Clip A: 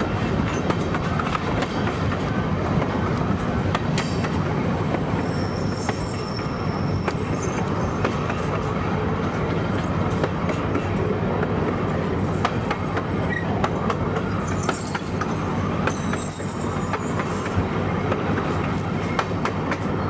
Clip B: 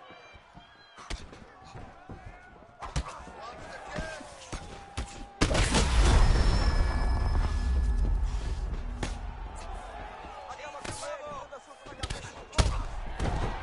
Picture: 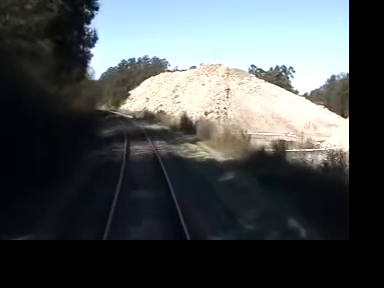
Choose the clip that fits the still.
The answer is A